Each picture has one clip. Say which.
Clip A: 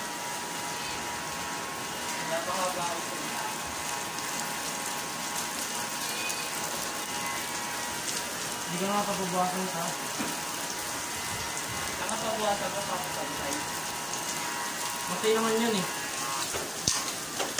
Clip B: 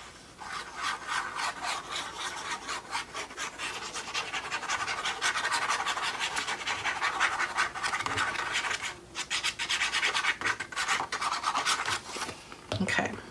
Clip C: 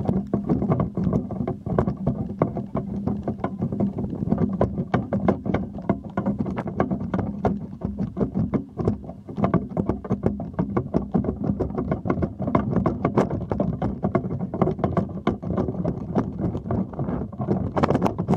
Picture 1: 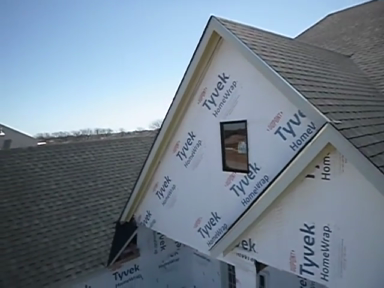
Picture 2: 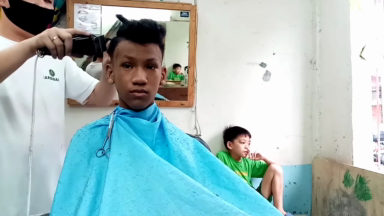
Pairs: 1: C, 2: A